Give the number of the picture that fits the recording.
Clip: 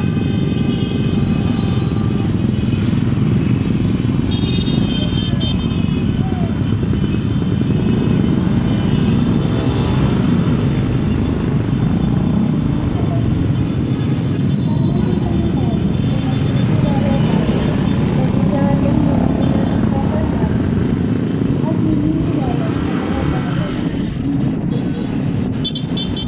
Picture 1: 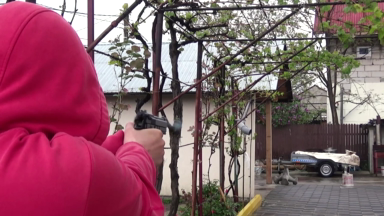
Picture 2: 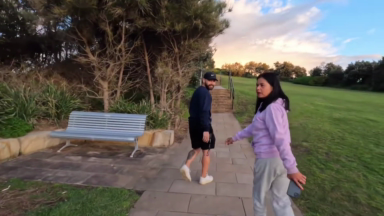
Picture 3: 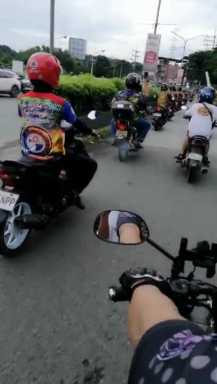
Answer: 3